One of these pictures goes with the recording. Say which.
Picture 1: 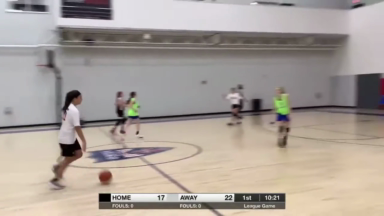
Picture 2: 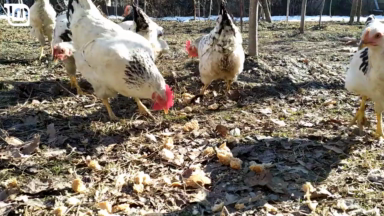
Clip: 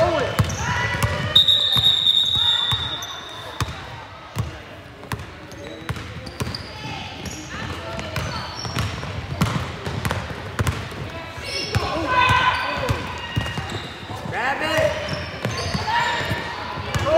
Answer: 1